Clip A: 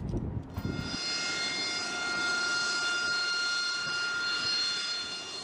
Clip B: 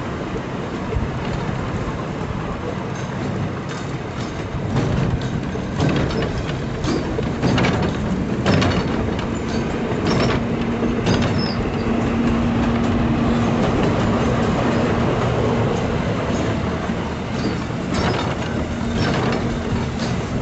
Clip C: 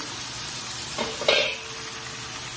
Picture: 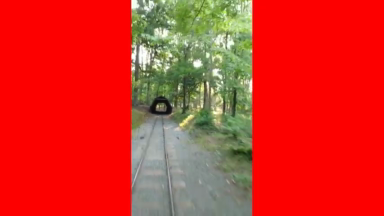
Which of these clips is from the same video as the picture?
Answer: B